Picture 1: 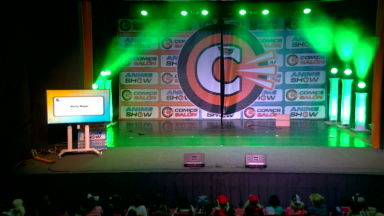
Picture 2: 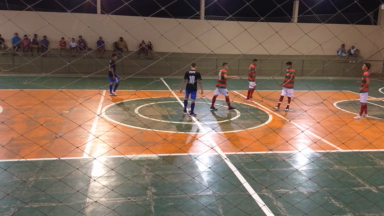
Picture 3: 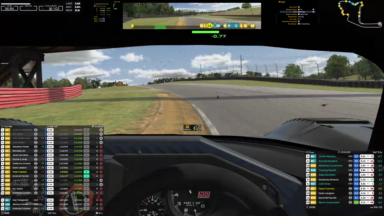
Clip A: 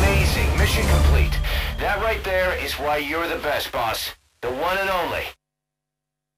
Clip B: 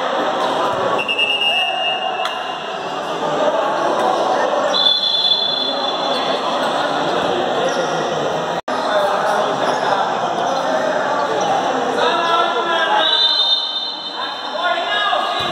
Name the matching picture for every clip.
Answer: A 1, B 2